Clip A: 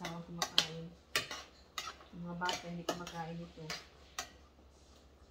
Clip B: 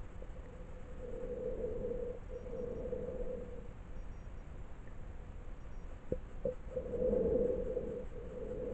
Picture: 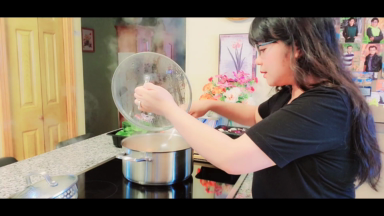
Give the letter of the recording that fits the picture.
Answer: A